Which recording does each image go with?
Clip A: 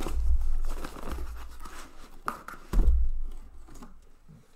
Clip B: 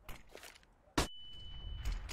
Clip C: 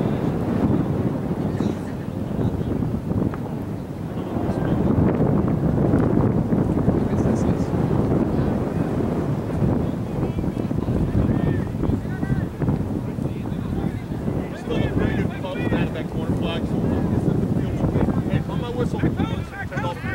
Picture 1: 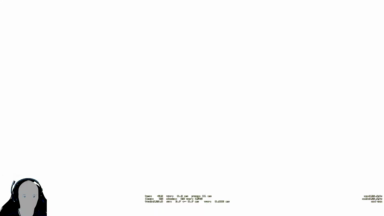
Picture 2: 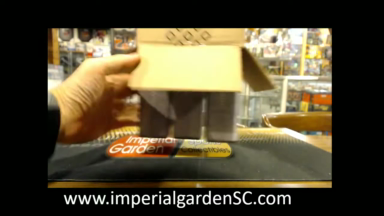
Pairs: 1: B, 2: A